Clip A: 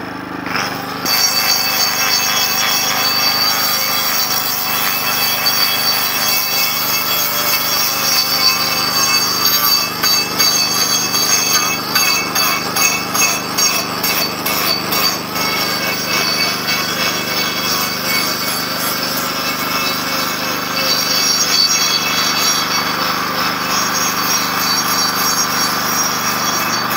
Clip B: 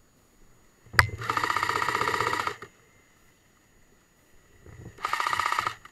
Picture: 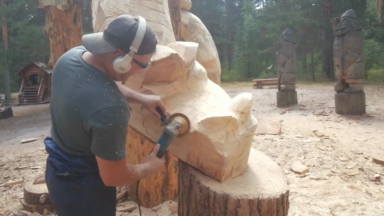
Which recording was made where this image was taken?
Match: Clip A